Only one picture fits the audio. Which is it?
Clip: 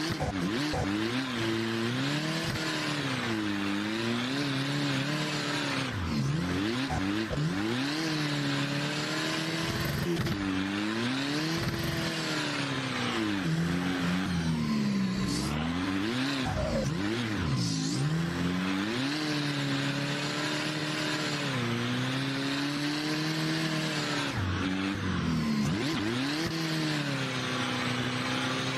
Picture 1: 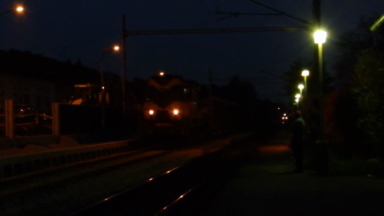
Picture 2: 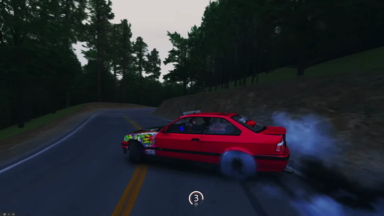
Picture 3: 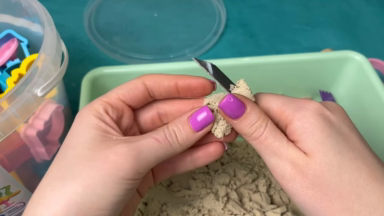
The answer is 2